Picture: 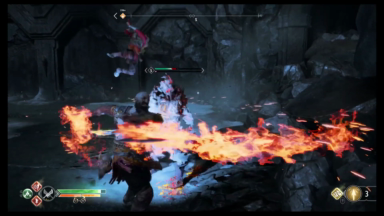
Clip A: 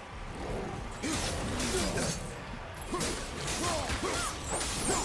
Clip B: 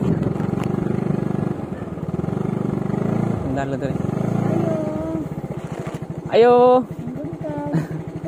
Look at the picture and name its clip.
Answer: A